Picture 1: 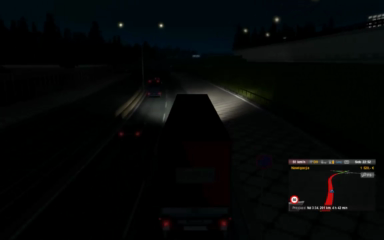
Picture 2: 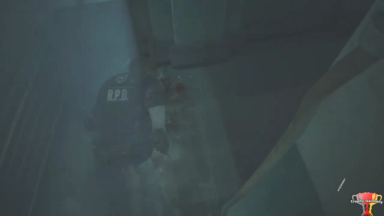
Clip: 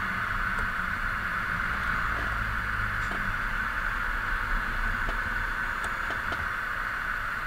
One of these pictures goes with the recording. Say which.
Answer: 1